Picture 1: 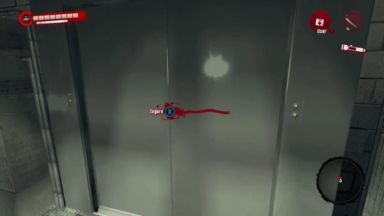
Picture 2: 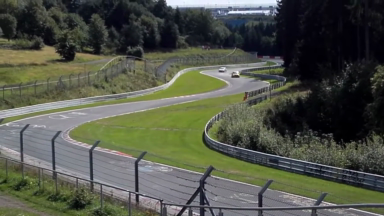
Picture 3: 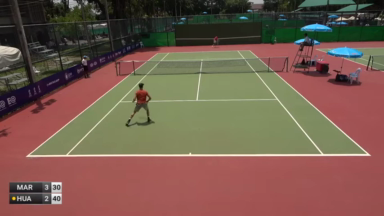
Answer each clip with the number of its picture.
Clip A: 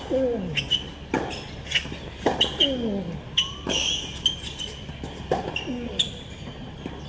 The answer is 3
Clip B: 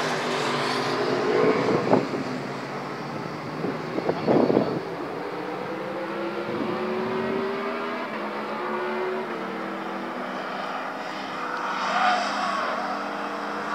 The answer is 2